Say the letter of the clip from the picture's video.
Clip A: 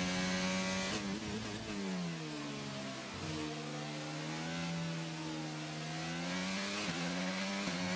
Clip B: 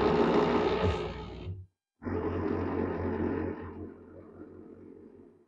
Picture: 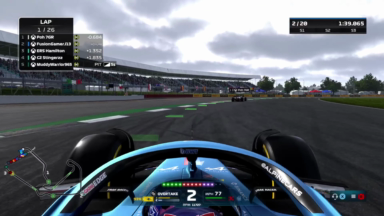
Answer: A